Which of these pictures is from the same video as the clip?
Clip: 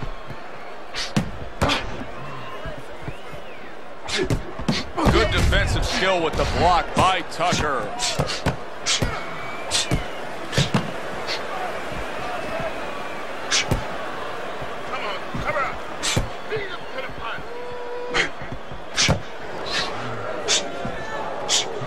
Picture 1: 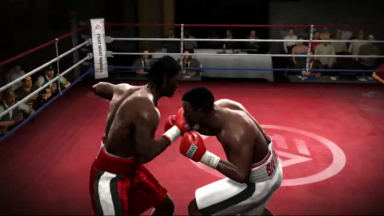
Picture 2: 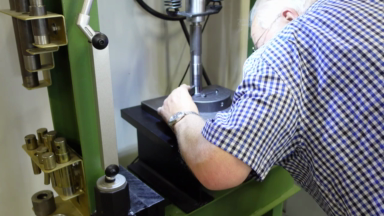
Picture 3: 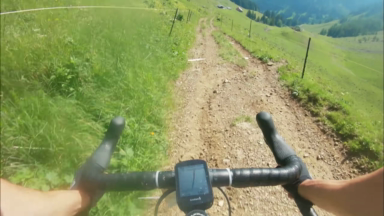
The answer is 1